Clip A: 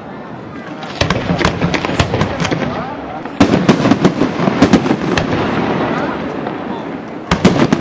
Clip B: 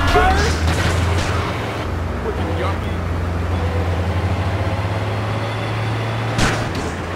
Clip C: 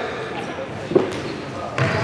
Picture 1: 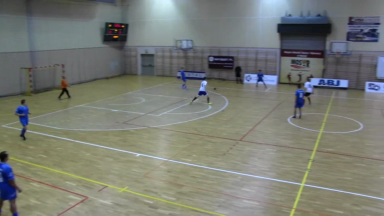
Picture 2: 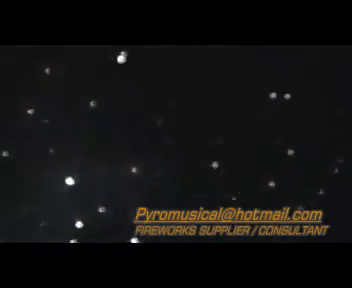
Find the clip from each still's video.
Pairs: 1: C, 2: A